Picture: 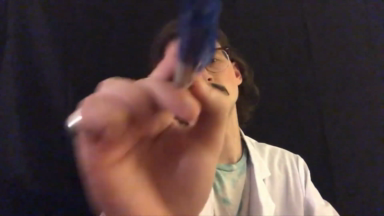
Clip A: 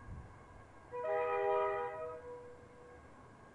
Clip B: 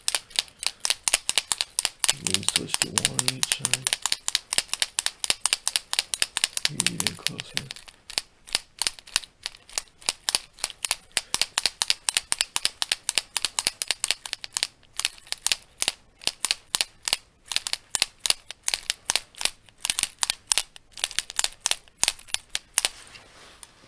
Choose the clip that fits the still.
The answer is B